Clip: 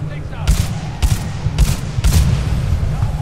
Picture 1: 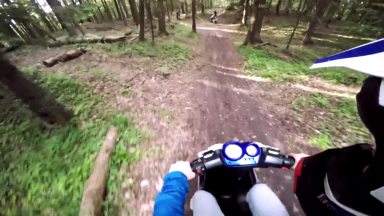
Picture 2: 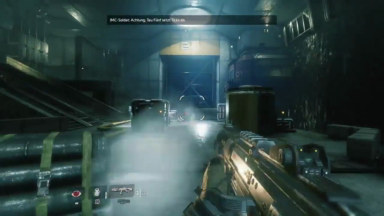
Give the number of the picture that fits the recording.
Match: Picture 2